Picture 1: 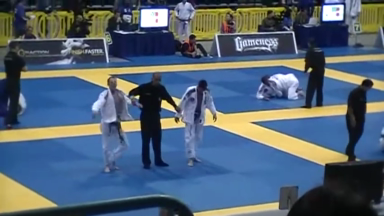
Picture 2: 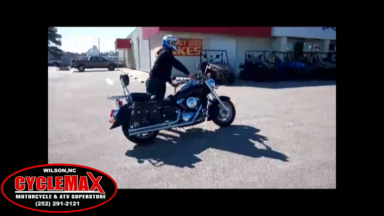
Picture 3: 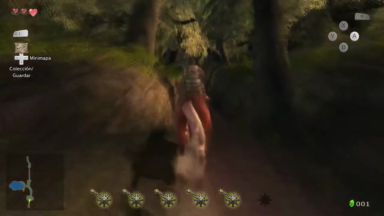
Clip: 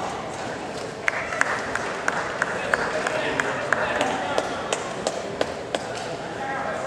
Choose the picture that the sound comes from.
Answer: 1